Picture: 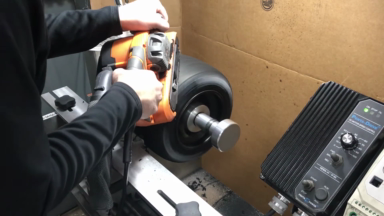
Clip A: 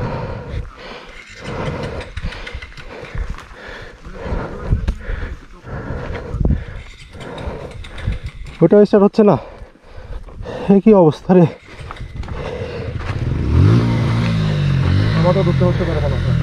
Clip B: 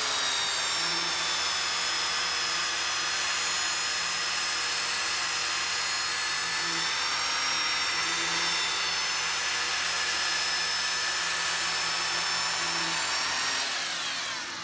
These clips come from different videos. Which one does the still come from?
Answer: B